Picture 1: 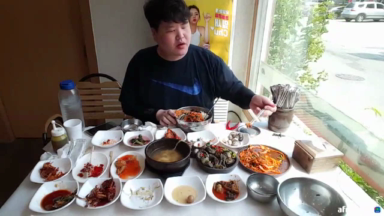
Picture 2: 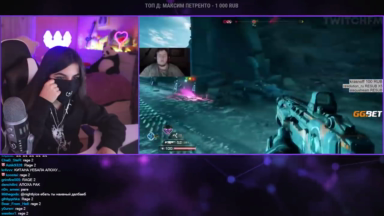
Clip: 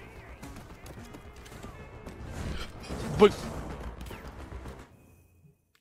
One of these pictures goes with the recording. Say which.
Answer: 2